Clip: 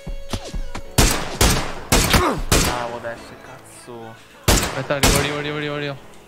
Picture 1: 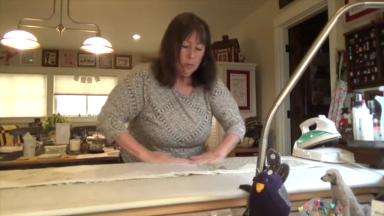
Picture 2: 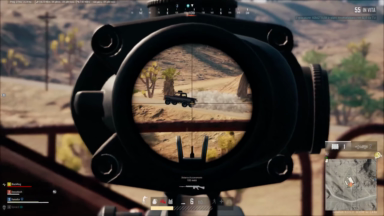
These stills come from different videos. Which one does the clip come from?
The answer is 2